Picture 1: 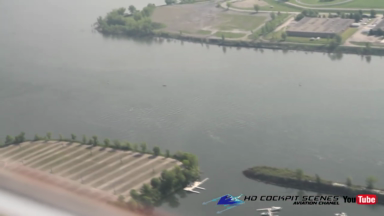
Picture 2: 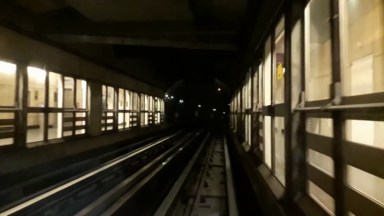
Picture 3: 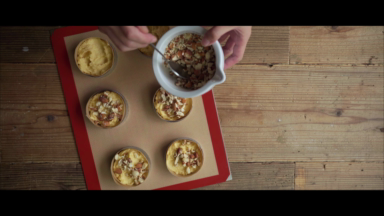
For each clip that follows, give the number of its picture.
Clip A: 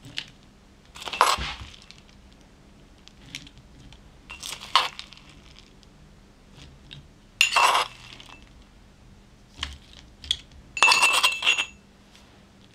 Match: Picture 3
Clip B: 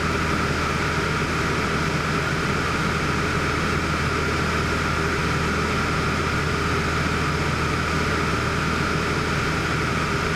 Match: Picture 1